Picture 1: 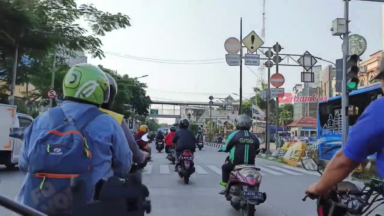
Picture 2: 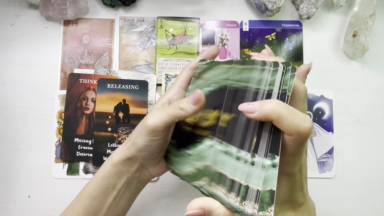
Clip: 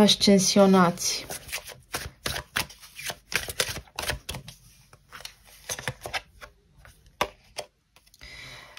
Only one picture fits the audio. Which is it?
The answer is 2